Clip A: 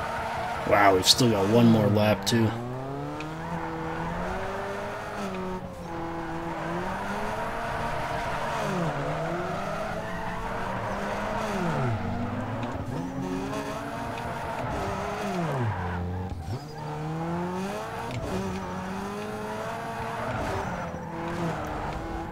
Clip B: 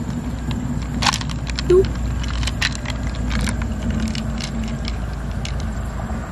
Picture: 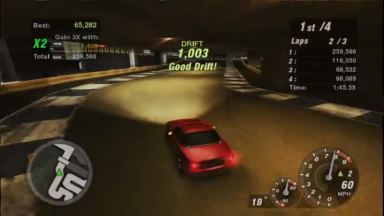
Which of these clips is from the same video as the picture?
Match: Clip A